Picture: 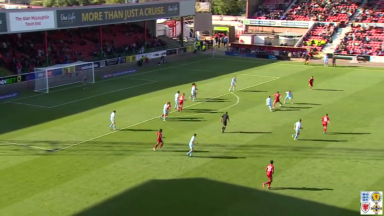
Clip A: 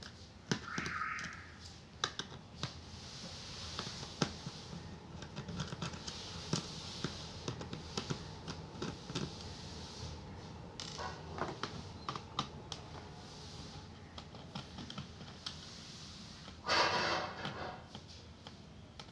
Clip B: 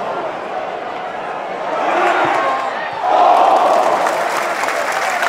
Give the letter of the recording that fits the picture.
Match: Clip B